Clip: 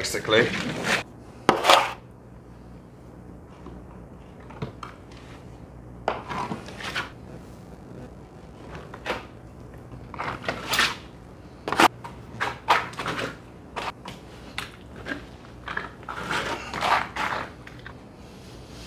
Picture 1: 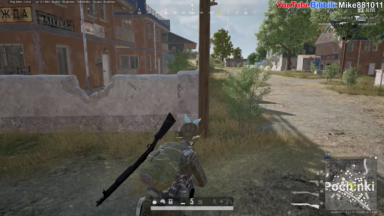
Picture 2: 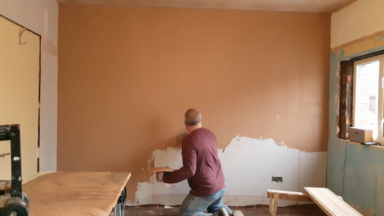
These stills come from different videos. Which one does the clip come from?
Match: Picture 2